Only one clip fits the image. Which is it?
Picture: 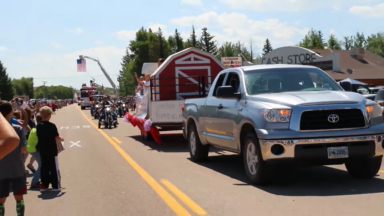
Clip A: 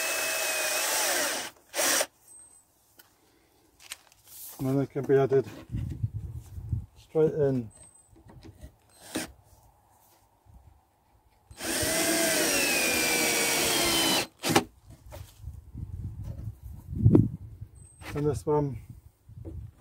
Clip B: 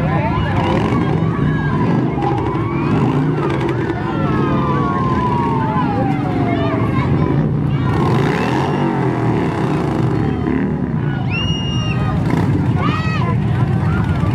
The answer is B